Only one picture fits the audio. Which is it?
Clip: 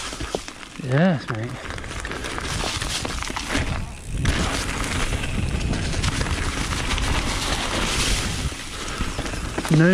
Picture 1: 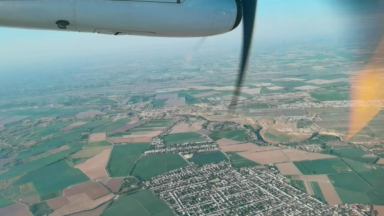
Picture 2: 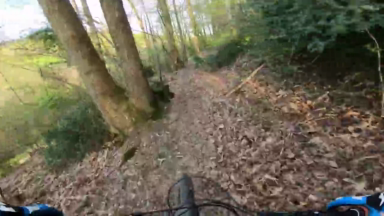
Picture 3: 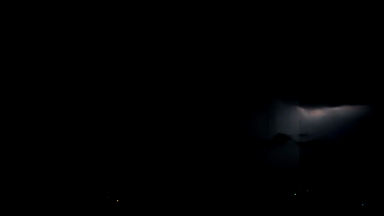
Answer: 2